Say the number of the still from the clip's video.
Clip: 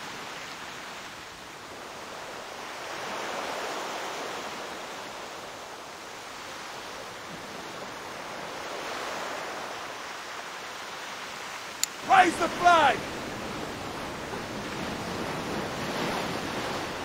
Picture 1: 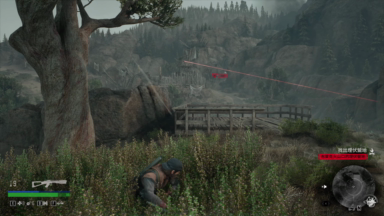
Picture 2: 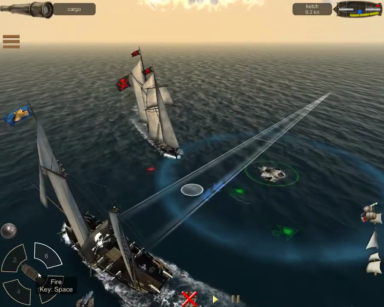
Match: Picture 2